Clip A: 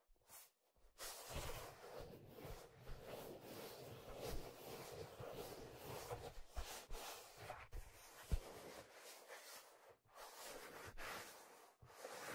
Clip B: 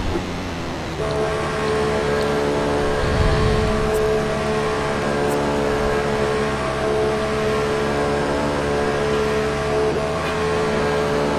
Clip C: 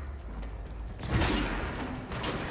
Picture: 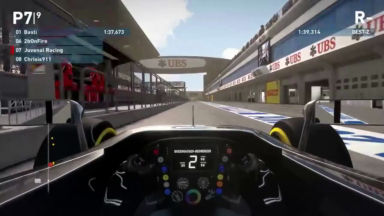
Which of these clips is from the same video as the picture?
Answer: B